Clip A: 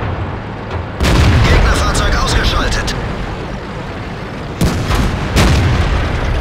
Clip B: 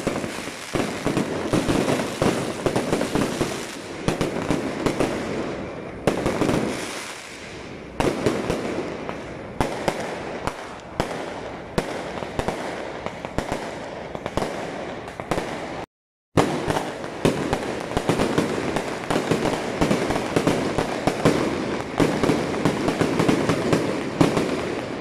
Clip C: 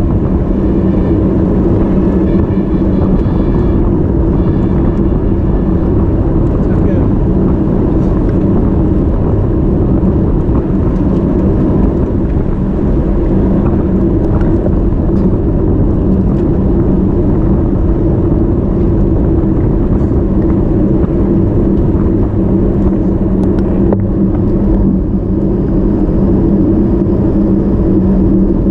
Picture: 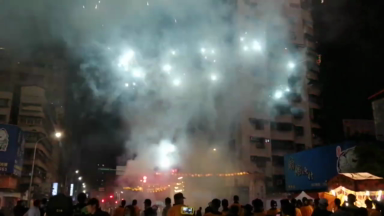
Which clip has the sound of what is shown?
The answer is B